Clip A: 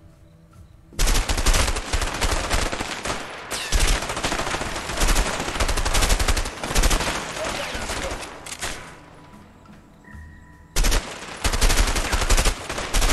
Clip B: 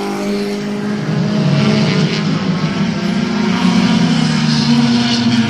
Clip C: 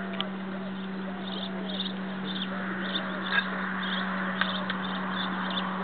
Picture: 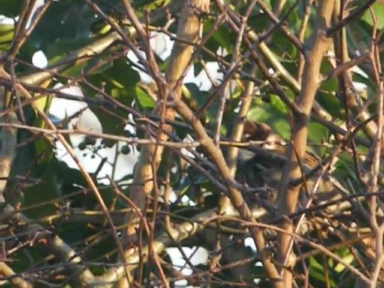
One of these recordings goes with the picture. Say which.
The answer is C